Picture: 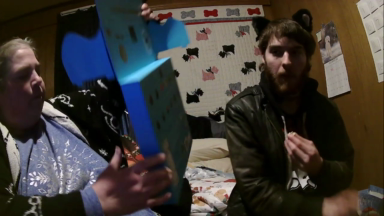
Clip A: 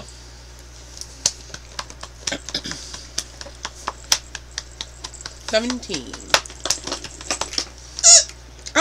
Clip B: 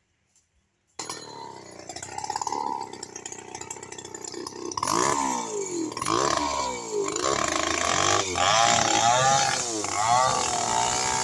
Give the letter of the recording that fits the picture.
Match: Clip A